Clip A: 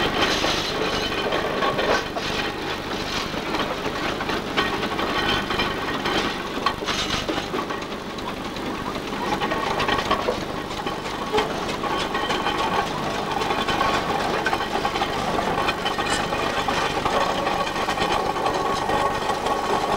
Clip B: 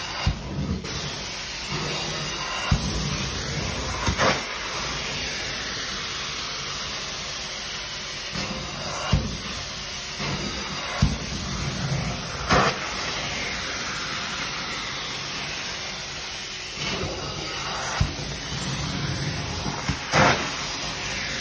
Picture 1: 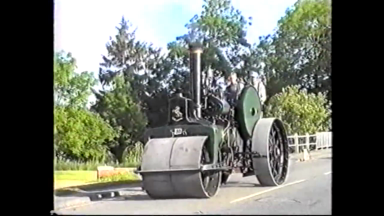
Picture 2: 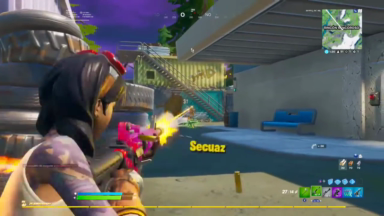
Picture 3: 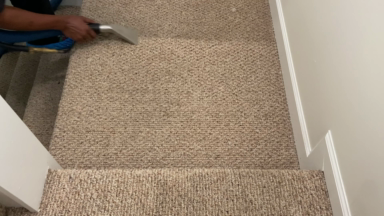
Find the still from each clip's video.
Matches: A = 1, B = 3